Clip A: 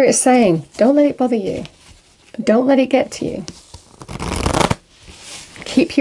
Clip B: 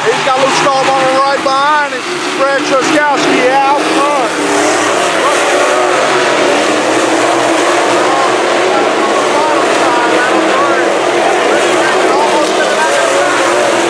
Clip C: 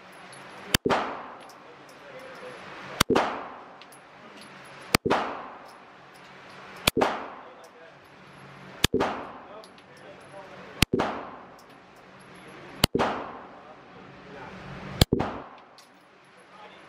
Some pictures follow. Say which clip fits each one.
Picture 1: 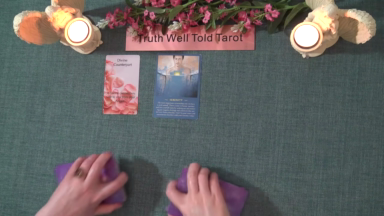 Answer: A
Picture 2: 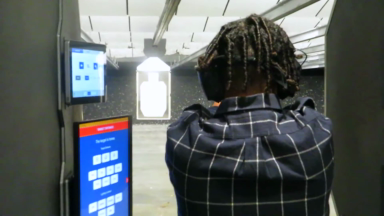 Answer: C